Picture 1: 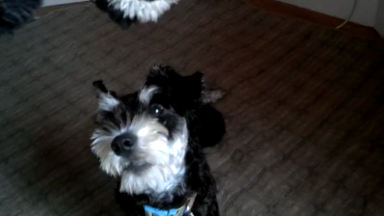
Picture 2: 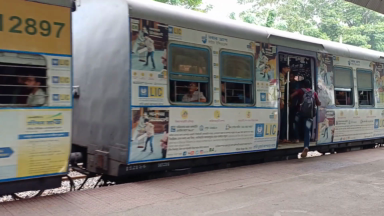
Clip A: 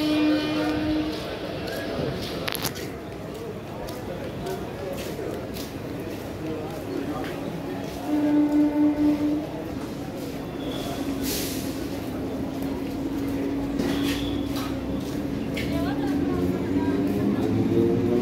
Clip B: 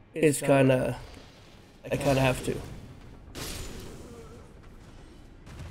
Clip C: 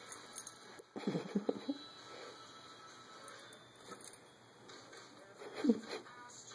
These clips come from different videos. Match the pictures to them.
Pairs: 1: C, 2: A